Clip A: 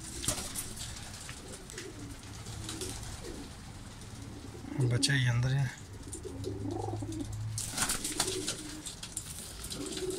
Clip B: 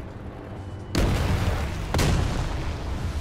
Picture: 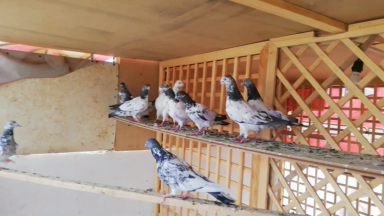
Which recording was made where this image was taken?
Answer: A